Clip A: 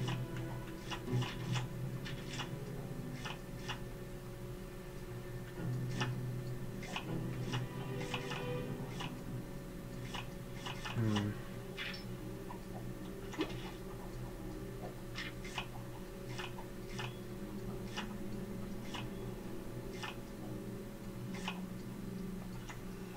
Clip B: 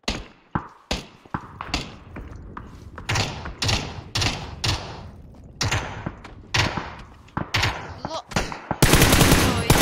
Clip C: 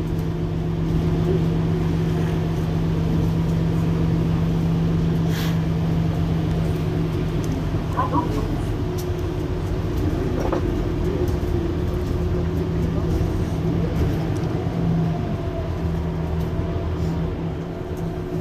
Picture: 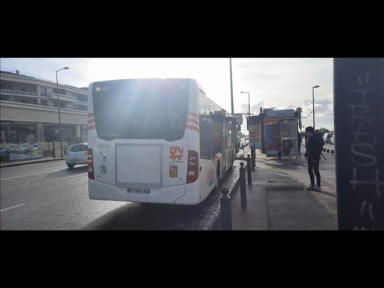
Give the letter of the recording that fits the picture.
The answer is C